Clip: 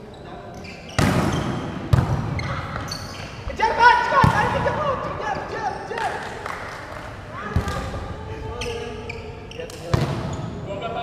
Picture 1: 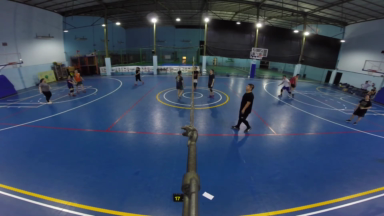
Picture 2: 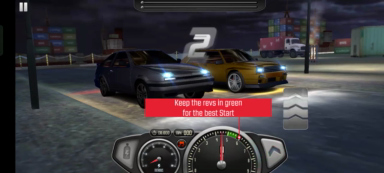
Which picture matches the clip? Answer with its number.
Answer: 1